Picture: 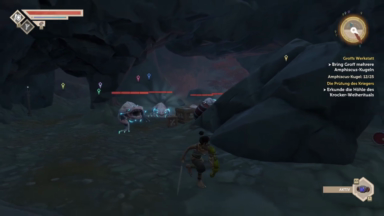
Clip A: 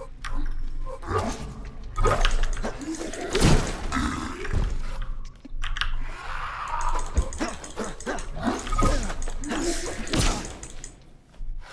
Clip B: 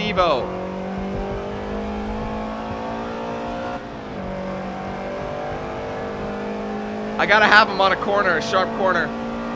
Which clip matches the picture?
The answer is A